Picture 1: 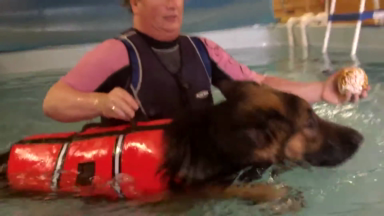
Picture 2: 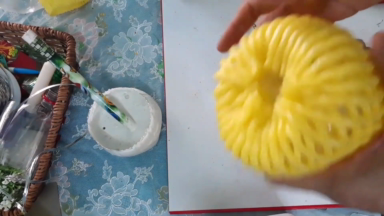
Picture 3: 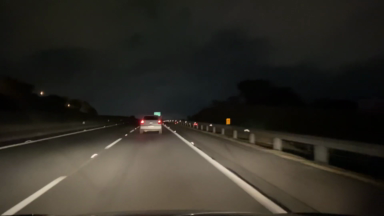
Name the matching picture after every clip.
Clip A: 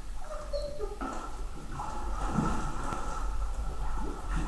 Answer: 1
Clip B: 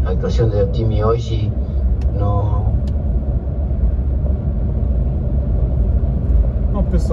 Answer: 3